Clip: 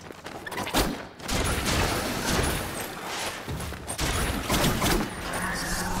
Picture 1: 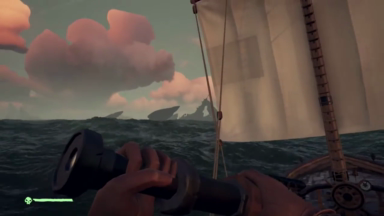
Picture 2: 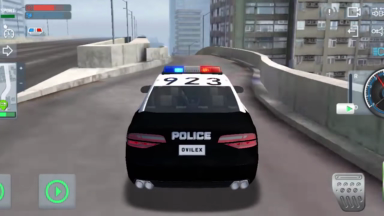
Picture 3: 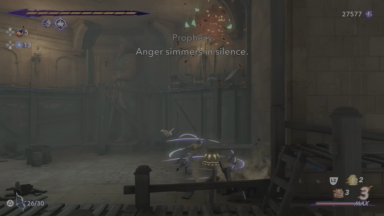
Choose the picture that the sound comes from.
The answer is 3